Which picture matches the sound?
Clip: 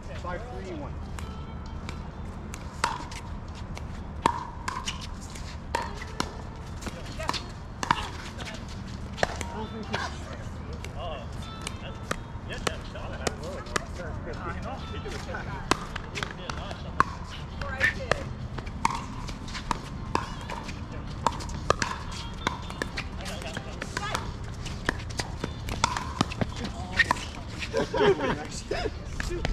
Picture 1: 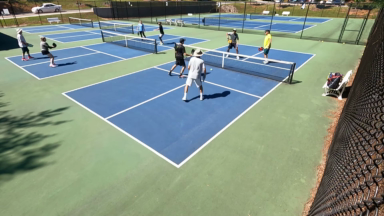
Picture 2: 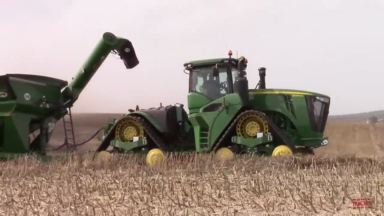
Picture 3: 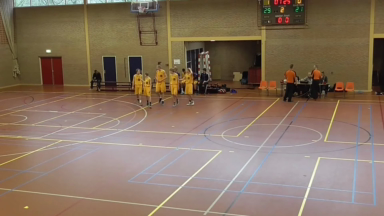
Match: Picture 1